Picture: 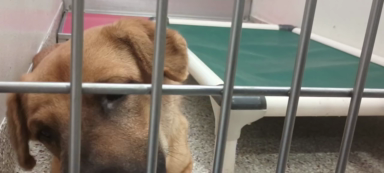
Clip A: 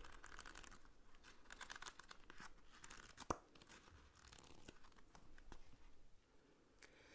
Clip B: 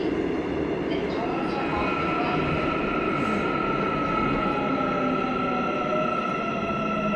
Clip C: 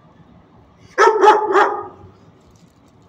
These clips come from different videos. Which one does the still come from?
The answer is C